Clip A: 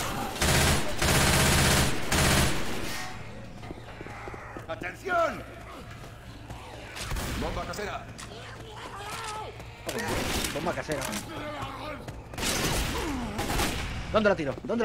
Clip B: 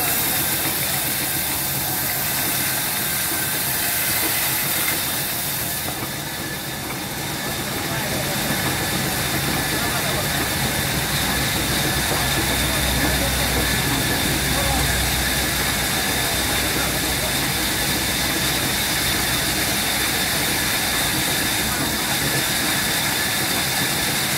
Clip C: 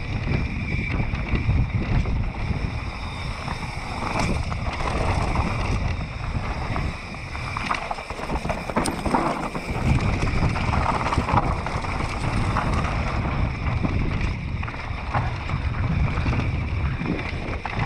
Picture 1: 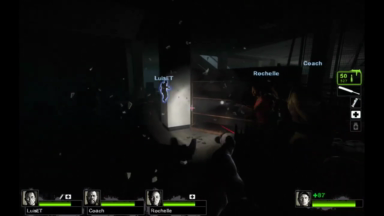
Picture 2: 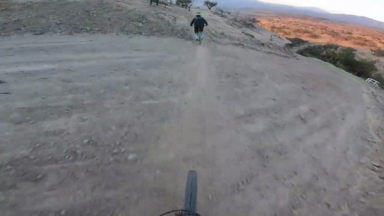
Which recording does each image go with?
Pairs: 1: A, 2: C